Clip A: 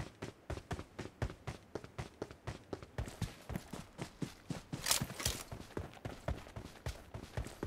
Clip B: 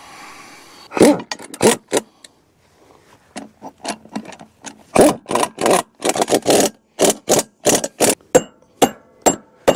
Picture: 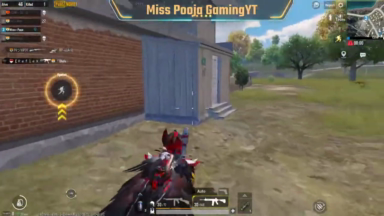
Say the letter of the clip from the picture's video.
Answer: A